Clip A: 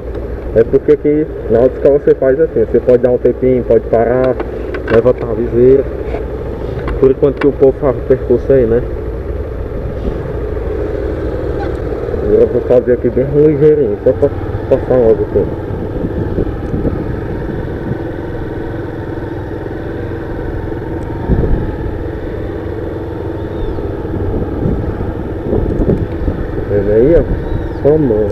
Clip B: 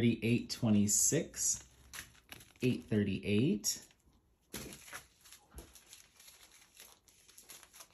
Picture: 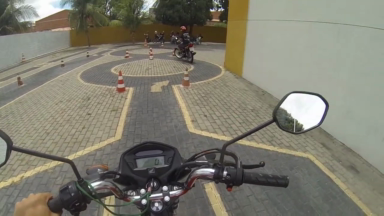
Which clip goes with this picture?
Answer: A